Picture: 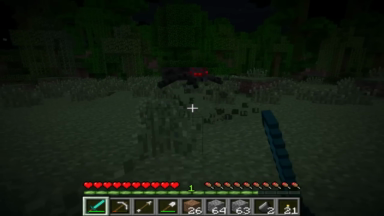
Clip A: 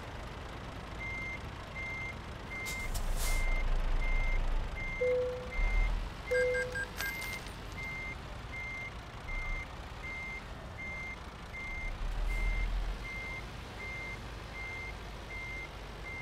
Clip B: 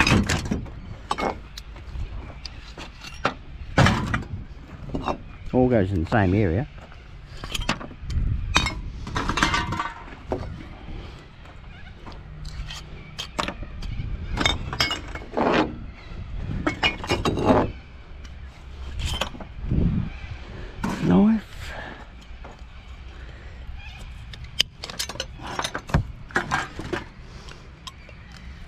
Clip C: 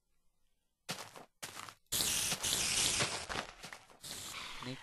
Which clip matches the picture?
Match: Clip C